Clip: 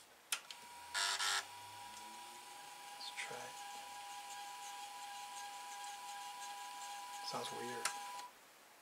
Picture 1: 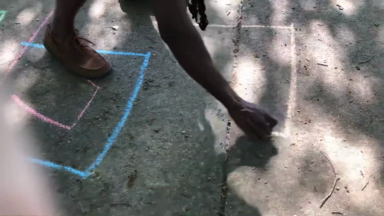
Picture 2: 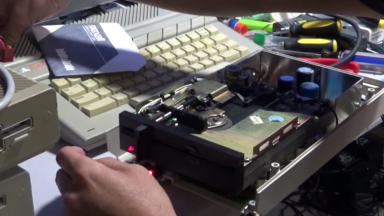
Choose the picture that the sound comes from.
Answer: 2